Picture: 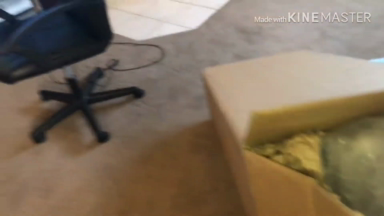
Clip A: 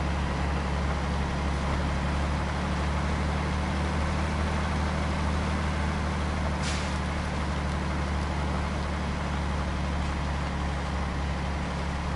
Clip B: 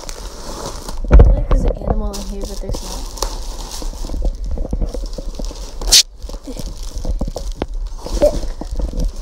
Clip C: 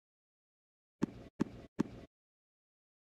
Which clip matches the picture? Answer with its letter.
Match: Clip B